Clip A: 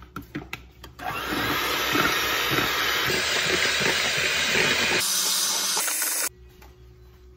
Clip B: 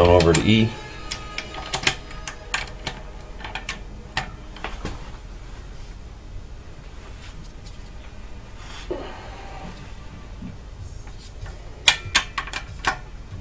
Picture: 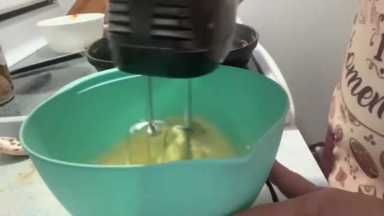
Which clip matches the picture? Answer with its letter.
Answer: A